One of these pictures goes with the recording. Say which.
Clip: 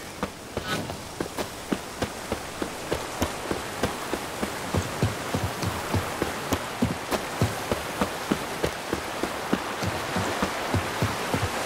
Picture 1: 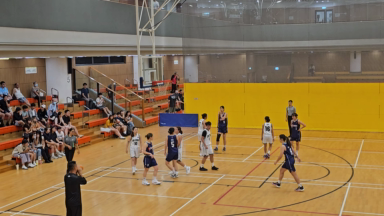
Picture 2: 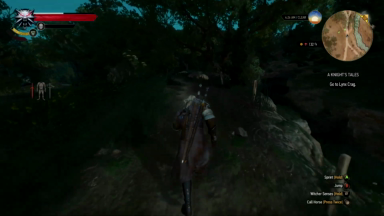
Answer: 2